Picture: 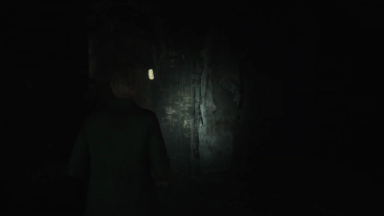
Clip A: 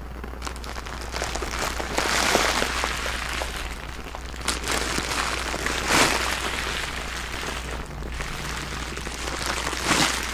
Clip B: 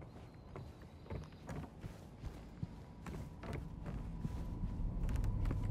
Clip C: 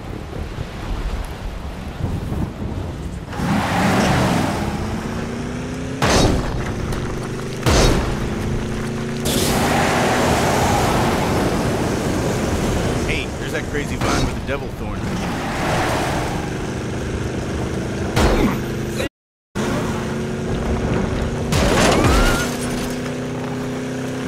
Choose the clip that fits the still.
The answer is B